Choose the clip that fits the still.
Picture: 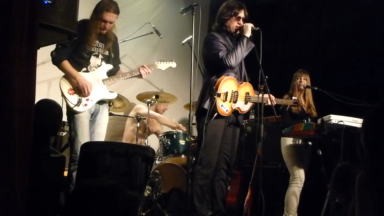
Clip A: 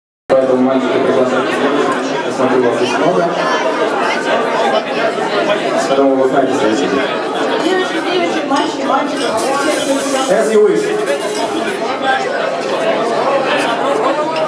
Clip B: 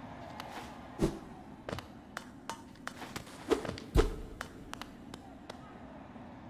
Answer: A